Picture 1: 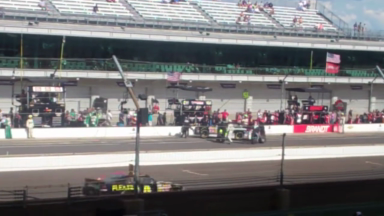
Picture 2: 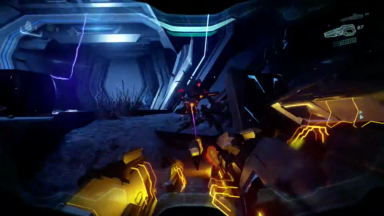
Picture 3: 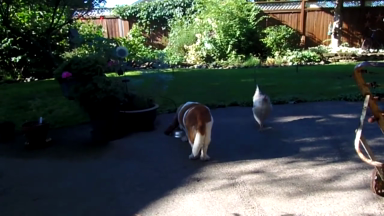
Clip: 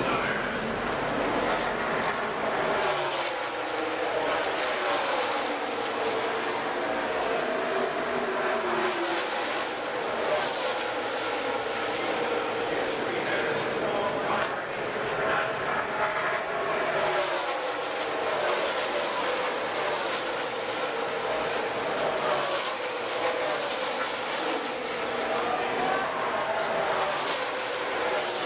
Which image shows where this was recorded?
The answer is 1